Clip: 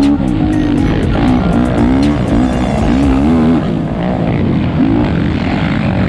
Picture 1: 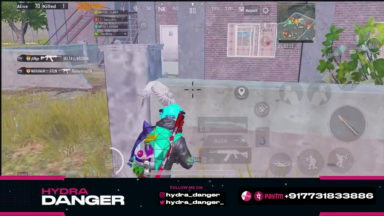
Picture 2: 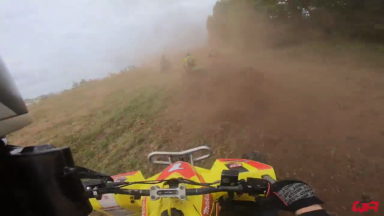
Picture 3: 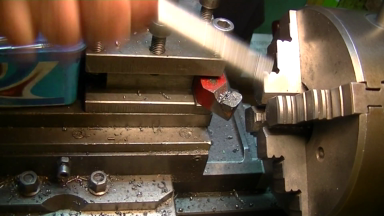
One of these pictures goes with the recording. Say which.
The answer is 2